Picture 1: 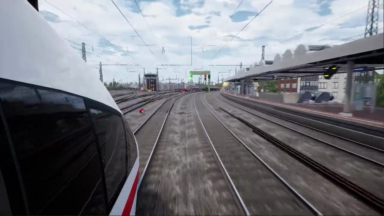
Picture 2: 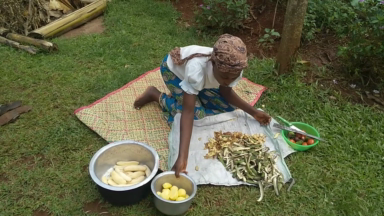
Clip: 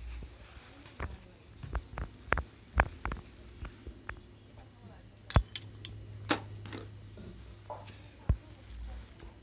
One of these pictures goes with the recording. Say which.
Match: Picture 2